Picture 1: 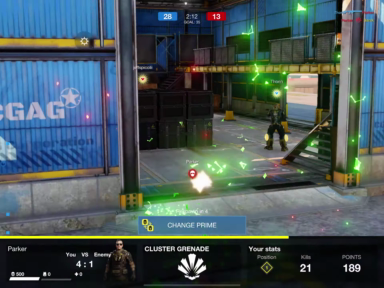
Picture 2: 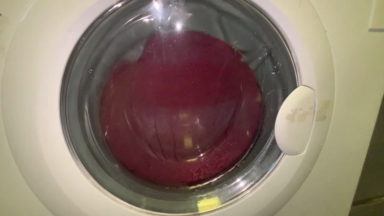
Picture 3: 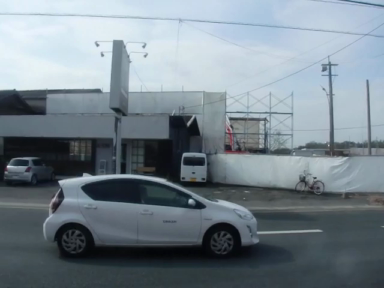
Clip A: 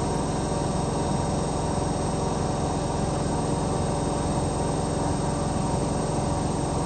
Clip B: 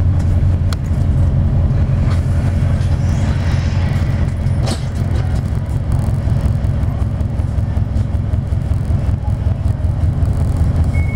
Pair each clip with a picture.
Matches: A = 2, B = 3